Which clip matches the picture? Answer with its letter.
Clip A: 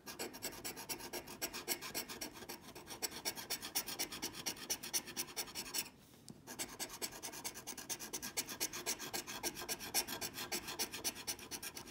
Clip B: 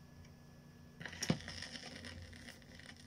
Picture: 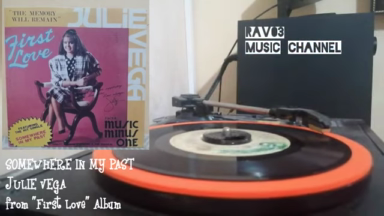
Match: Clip B